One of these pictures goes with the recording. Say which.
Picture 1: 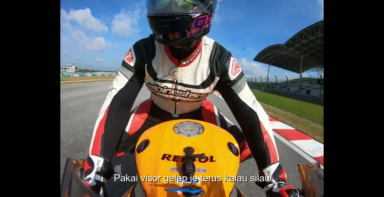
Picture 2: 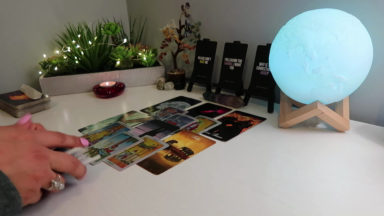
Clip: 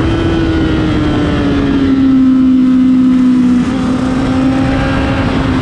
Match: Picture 1